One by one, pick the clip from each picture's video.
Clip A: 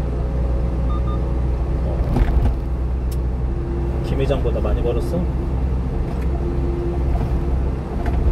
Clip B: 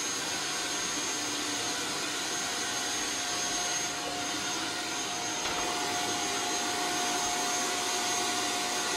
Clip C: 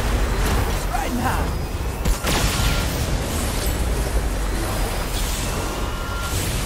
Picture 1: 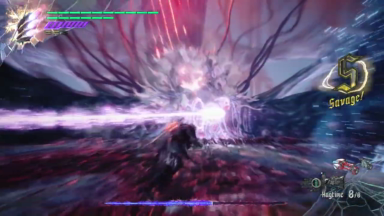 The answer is C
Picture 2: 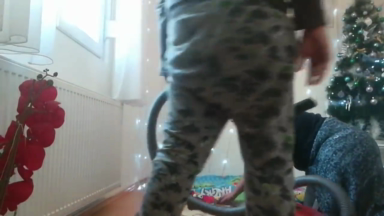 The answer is B